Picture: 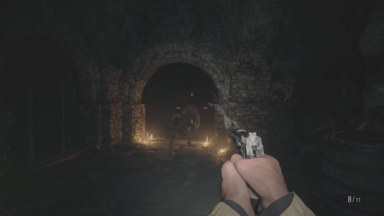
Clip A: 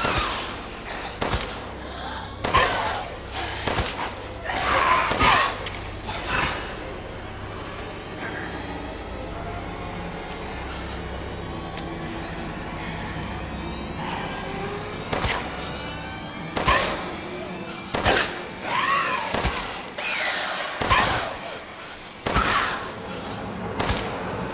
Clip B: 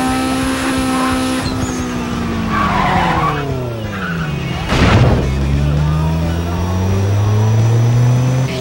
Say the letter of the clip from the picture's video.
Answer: A